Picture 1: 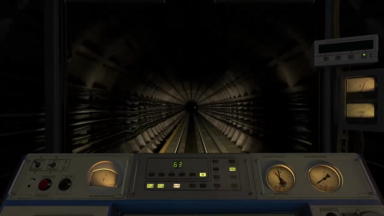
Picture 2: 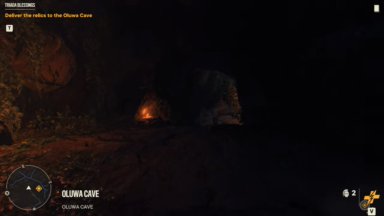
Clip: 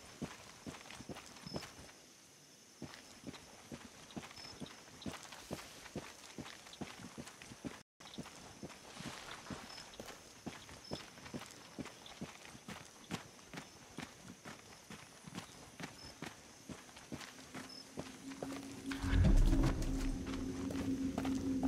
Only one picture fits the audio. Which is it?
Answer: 2